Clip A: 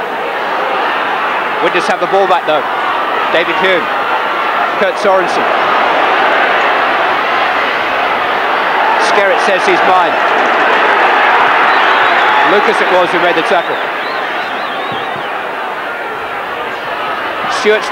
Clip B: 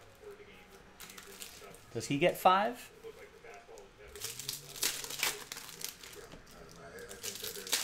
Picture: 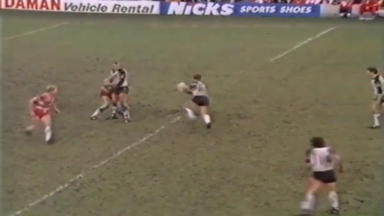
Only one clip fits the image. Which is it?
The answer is A